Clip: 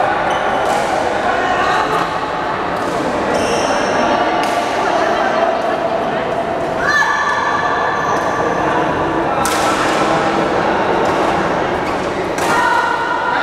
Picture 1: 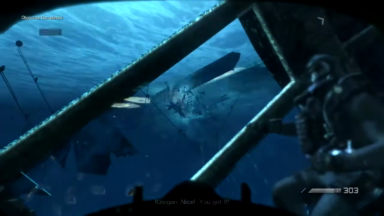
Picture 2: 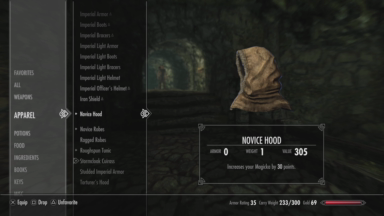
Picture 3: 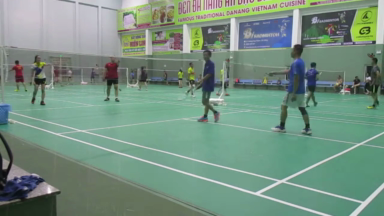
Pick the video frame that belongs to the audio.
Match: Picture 3